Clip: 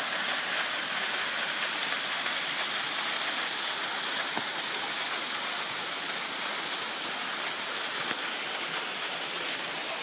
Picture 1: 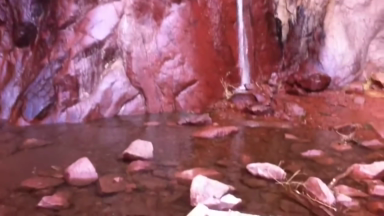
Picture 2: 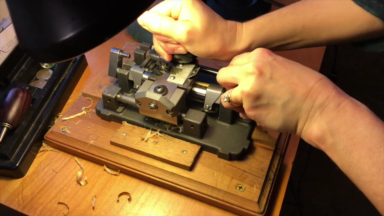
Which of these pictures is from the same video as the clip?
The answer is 1